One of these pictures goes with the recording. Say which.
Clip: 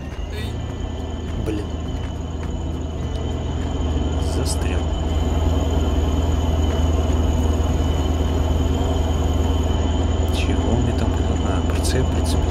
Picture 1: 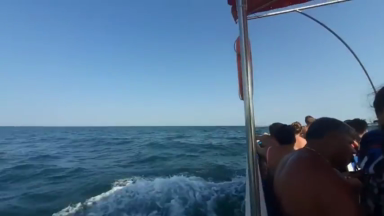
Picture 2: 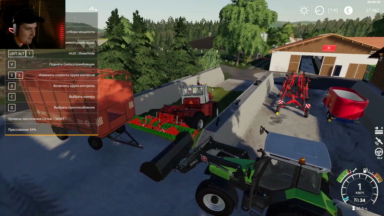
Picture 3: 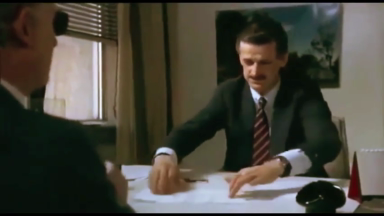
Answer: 2